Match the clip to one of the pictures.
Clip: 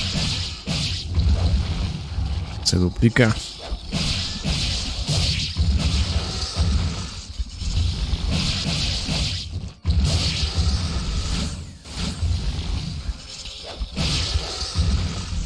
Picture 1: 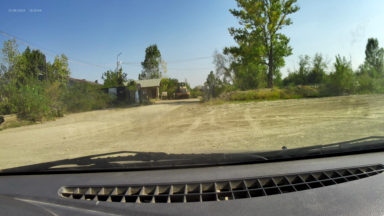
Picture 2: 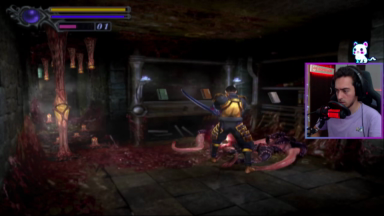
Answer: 2